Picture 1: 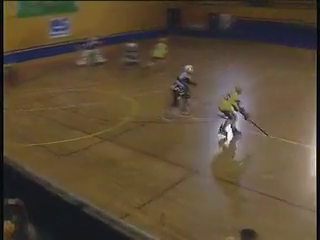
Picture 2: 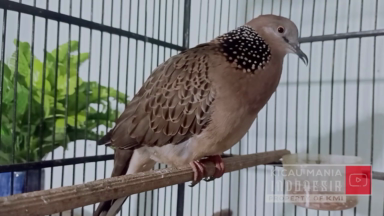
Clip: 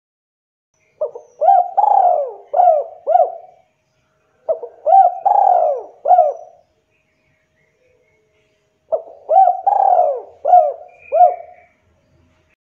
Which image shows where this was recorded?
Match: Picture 2